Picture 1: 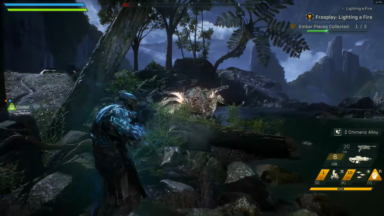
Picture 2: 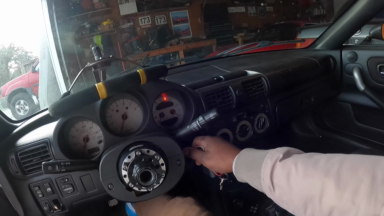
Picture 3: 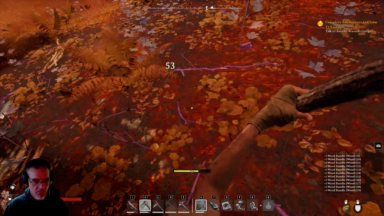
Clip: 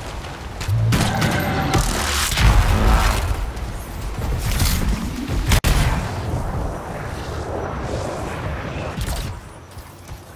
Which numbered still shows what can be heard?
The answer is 1